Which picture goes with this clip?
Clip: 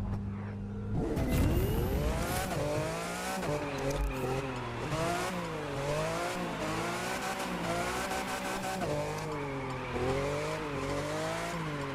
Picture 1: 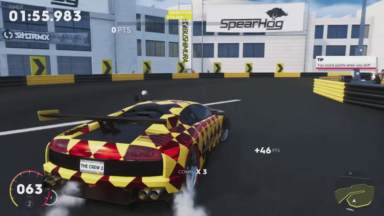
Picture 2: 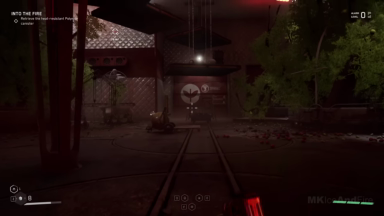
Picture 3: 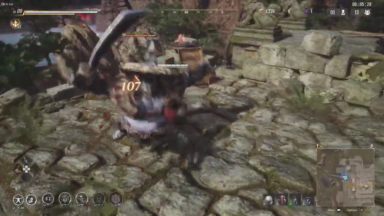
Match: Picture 1